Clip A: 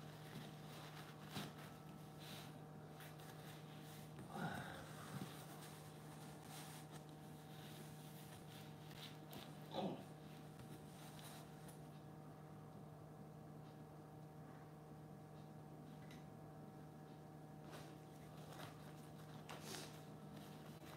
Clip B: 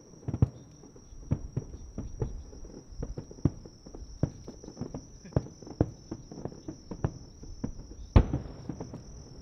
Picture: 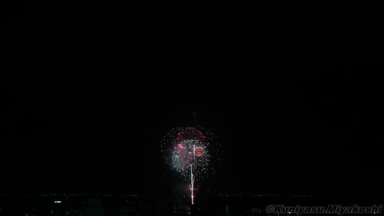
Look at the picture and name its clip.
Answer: B